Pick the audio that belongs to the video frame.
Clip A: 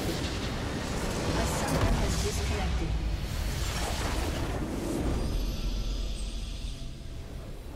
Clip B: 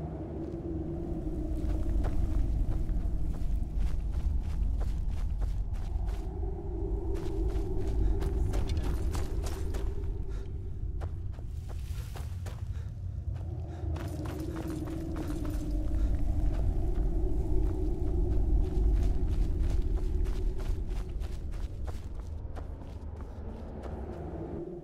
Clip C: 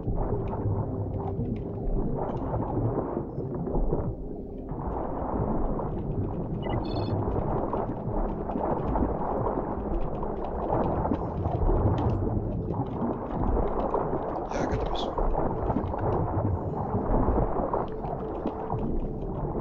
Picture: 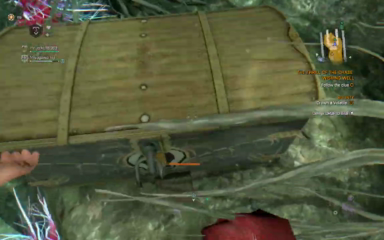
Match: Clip C